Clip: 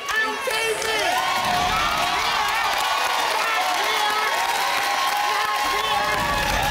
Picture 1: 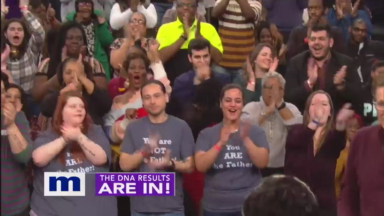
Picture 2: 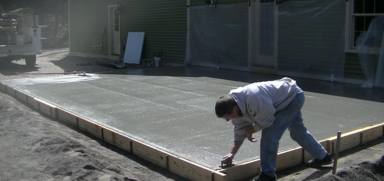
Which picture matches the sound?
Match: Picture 1